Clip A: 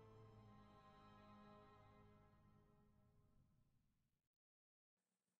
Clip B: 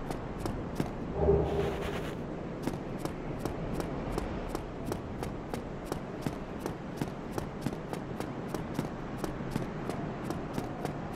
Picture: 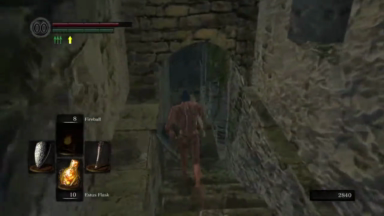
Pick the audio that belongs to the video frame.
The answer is B